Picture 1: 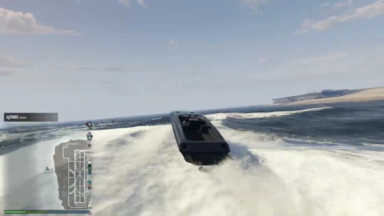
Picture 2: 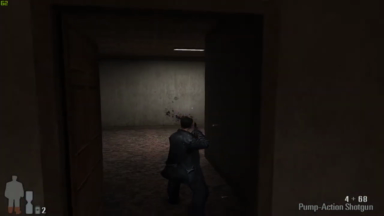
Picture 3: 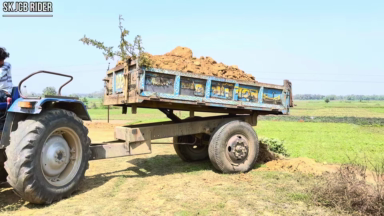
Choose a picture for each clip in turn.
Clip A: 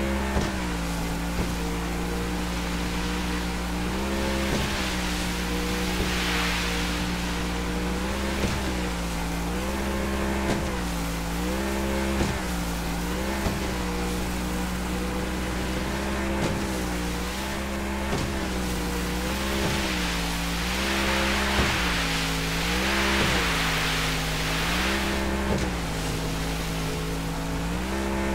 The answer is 1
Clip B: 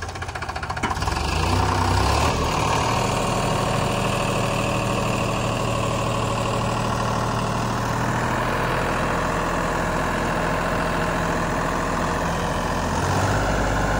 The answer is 3